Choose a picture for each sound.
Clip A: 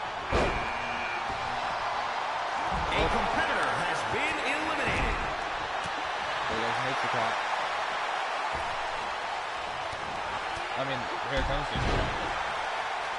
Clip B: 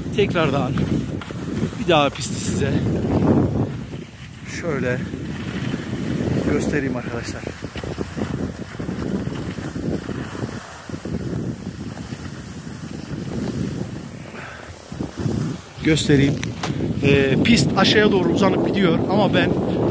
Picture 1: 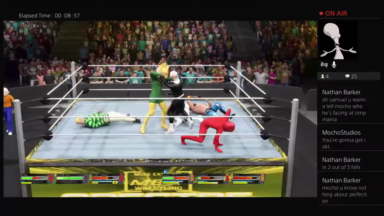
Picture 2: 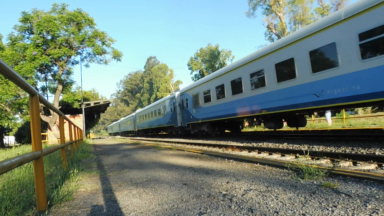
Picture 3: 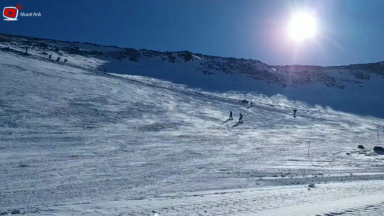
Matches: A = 1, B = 3